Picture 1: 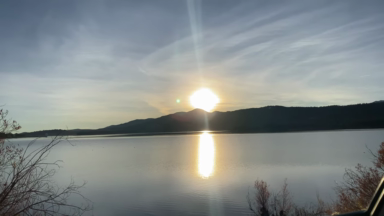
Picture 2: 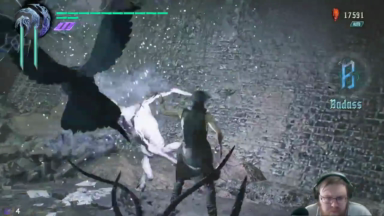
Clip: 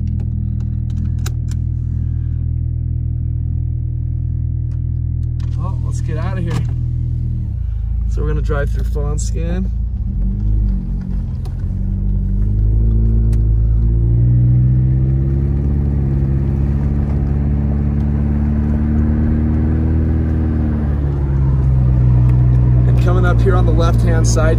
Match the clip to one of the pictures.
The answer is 1